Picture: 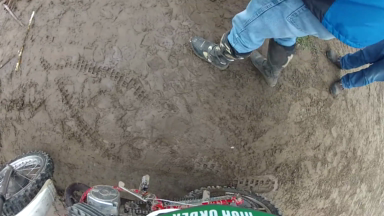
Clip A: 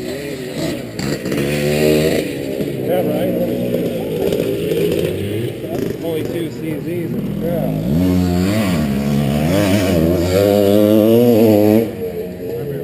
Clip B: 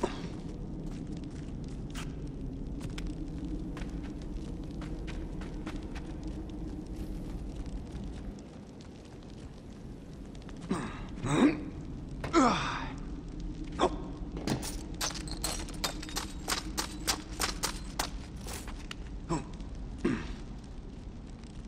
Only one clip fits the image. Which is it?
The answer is A